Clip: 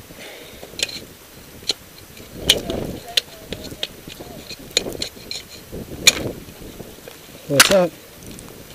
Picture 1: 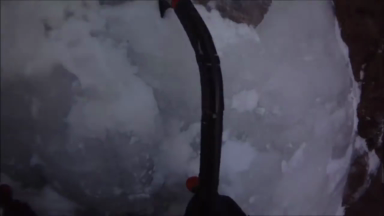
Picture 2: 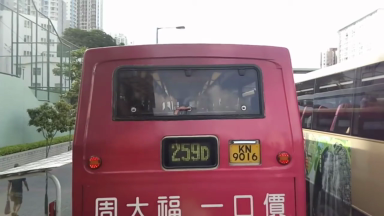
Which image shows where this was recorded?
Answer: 1